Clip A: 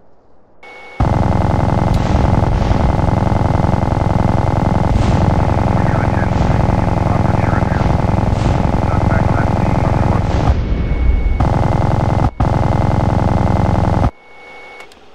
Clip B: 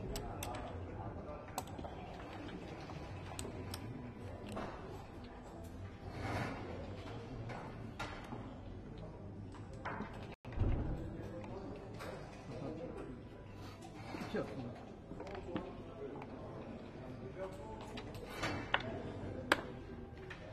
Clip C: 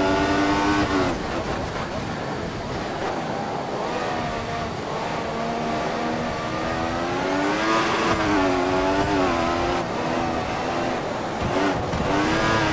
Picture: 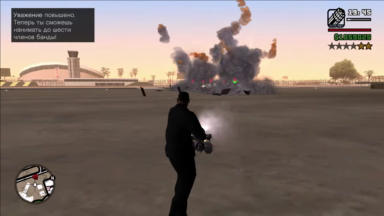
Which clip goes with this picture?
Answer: A